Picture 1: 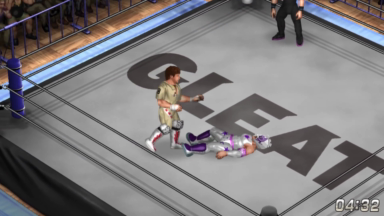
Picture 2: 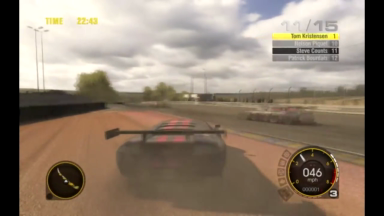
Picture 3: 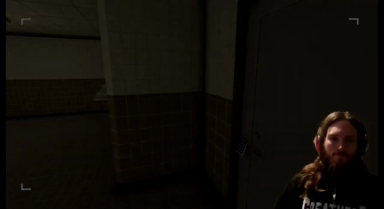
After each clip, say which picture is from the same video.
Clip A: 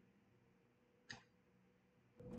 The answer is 3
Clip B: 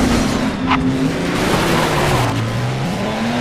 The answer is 2